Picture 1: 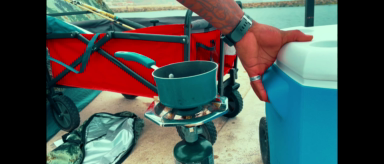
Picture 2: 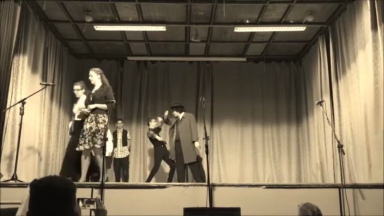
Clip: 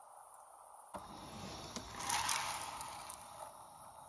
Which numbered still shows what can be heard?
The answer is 1